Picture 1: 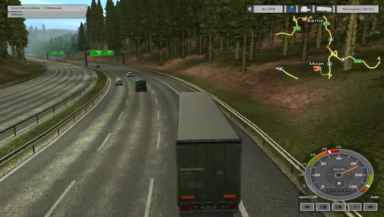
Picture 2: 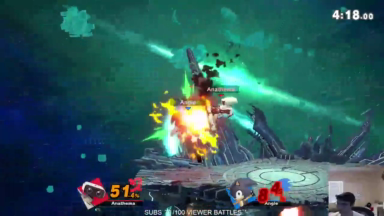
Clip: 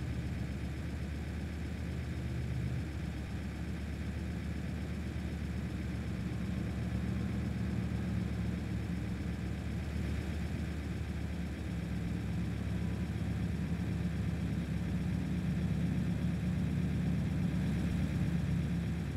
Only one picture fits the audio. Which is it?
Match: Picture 1